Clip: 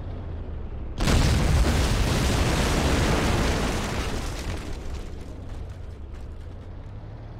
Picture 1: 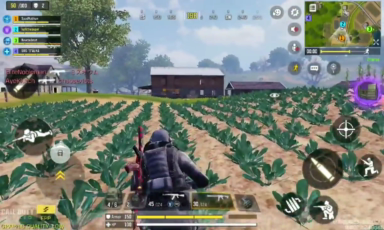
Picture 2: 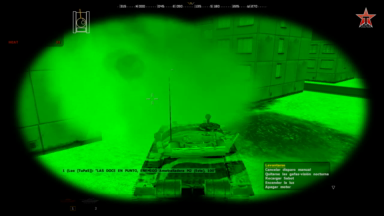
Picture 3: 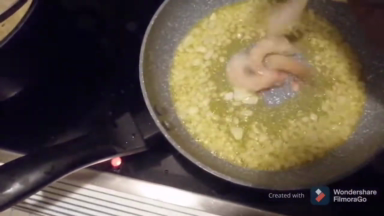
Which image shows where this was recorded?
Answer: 2